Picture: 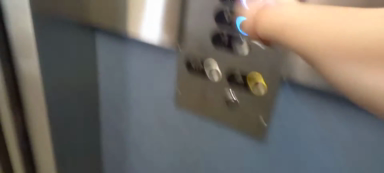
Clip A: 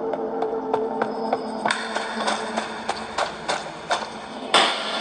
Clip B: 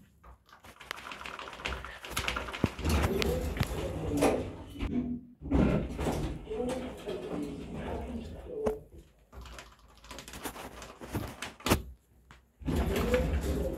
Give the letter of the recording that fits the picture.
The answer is B